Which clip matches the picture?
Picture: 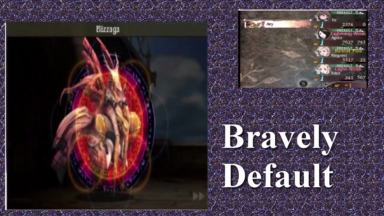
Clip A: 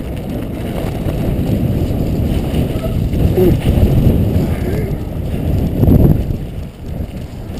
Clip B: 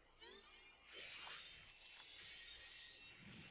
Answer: B